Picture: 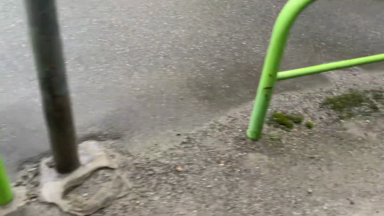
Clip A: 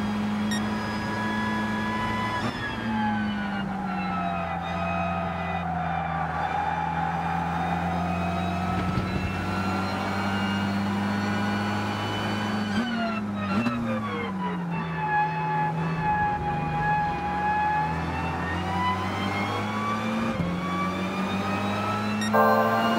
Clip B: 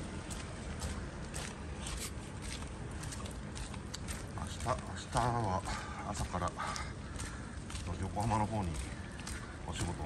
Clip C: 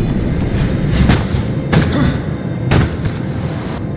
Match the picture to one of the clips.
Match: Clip B